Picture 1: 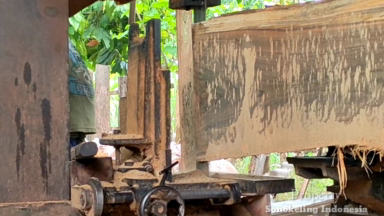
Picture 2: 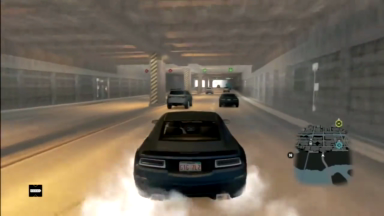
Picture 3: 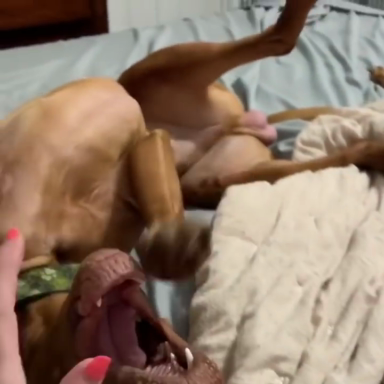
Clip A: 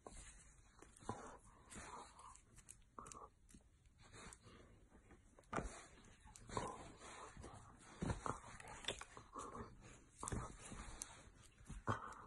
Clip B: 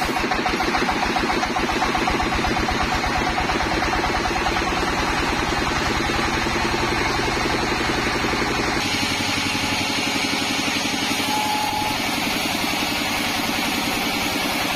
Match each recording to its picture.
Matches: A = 3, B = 1